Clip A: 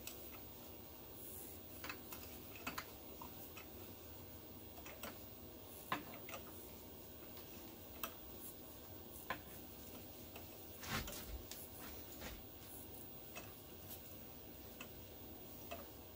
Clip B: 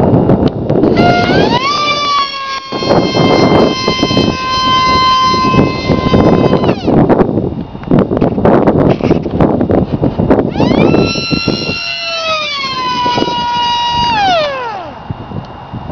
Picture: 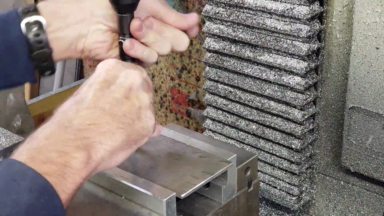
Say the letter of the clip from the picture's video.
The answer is A